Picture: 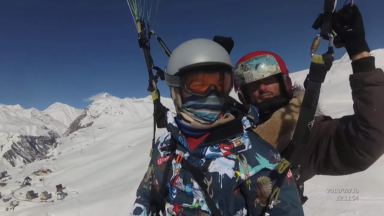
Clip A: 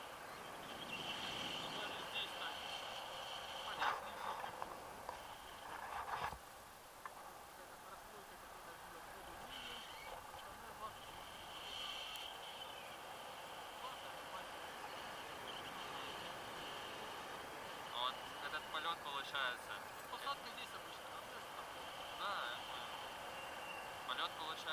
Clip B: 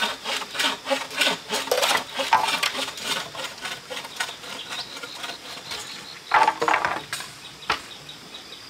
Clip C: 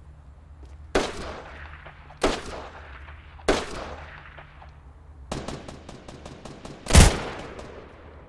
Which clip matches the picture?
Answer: A